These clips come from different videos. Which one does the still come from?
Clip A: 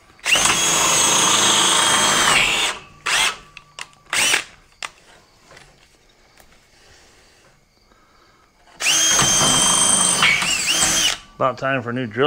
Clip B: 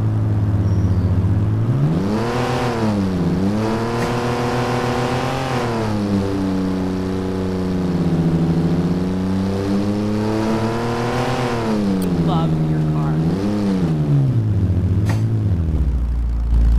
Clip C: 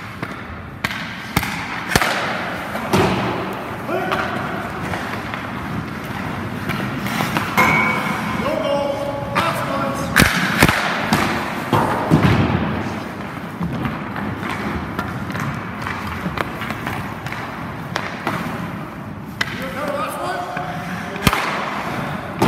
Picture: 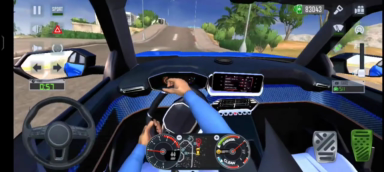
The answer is B